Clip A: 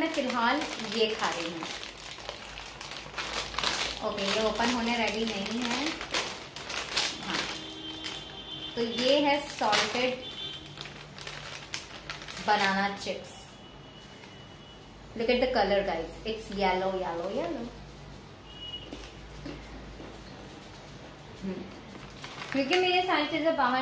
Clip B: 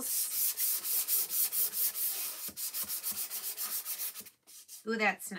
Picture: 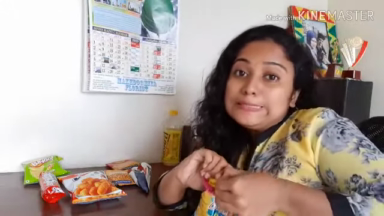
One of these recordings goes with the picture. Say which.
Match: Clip A